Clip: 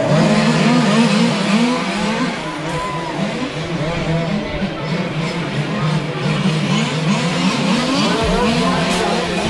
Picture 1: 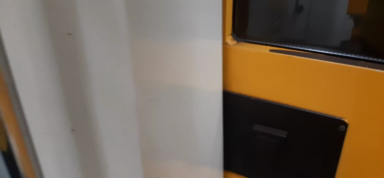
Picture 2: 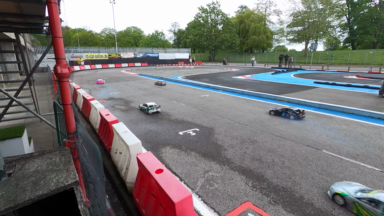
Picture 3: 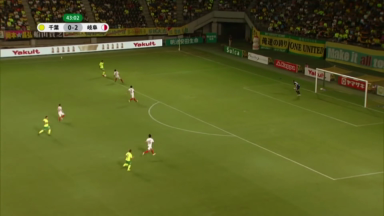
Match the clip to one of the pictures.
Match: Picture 2